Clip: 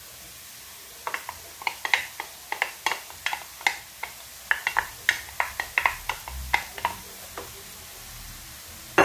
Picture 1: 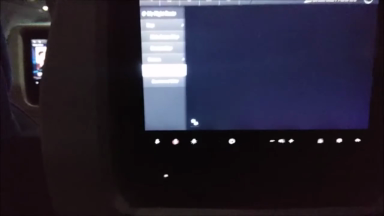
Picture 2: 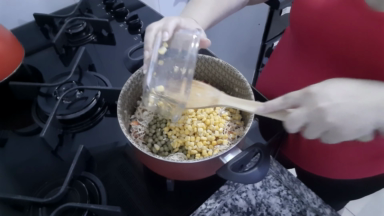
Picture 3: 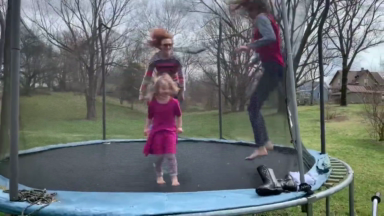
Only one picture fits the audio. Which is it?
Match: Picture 2